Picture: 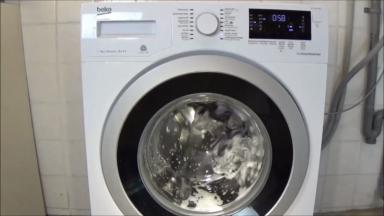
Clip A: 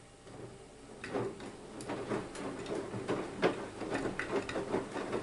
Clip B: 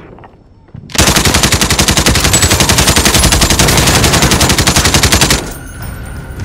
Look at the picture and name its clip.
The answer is A